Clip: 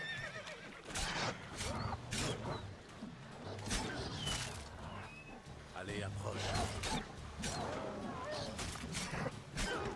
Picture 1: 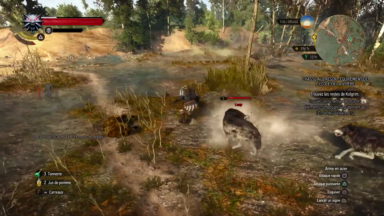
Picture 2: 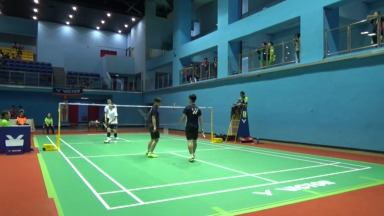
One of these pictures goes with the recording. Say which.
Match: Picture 1